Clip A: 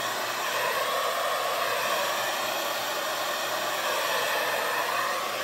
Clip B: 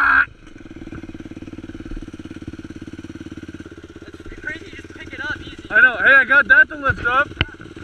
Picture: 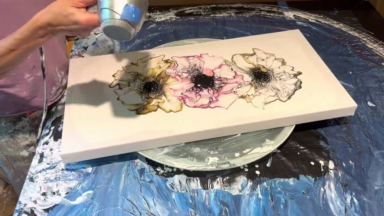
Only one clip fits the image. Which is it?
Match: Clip A